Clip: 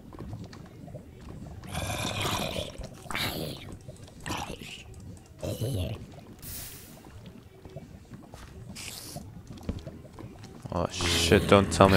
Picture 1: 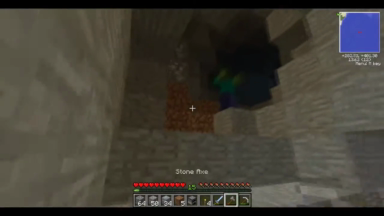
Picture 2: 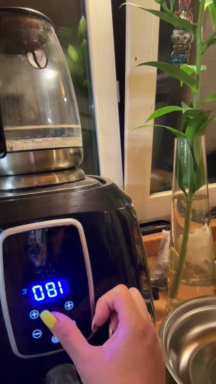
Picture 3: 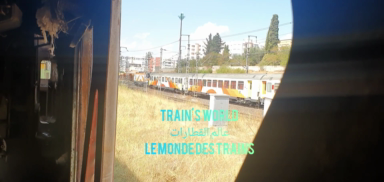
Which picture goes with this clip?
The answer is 1